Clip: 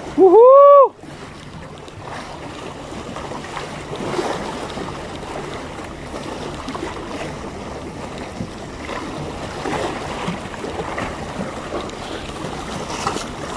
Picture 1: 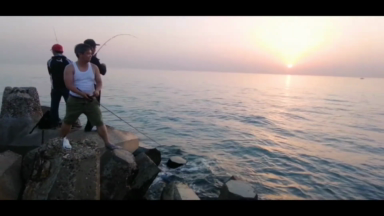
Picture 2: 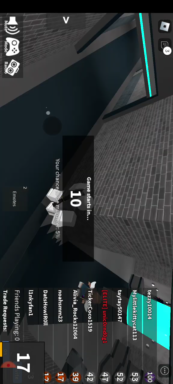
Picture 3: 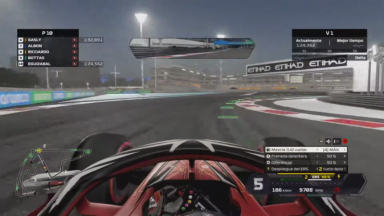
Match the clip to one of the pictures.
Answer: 1